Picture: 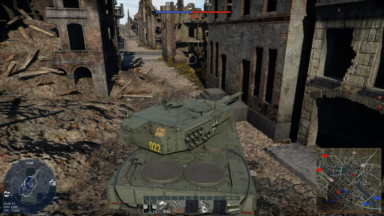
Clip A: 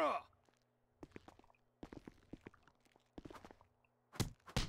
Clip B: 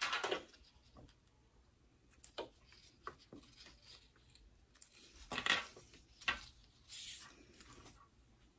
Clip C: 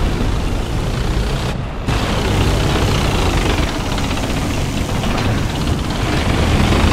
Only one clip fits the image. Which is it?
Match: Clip C